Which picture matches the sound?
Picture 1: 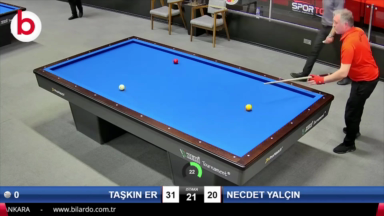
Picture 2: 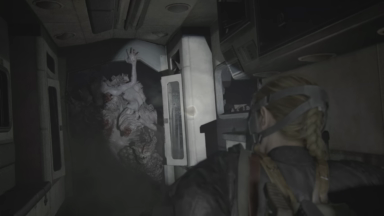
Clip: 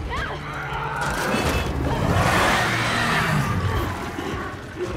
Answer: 2